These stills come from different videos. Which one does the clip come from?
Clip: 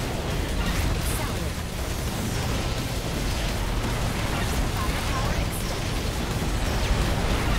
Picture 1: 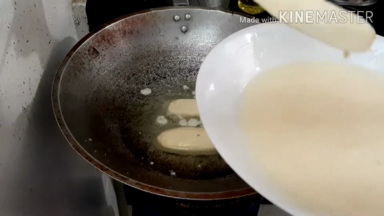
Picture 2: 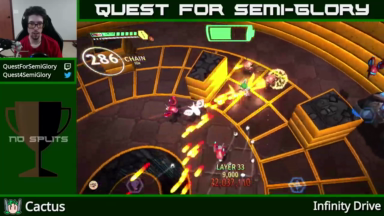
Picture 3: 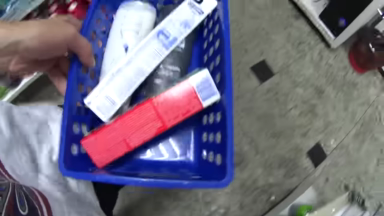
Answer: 2